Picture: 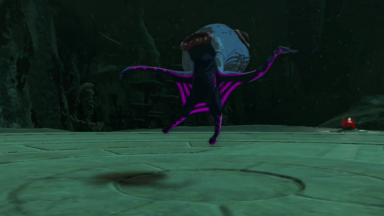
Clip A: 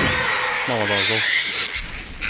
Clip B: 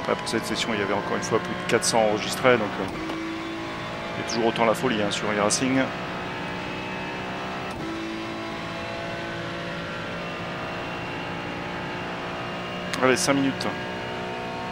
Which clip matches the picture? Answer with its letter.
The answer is A